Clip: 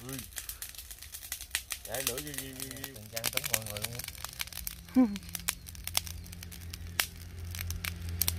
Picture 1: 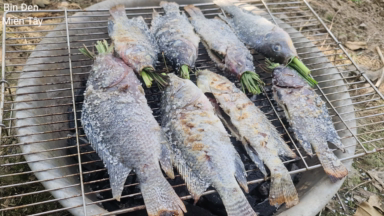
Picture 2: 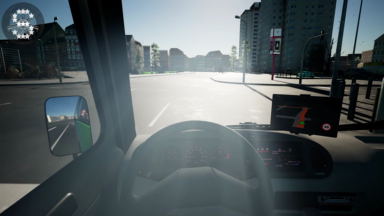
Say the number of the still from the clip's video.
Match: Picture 1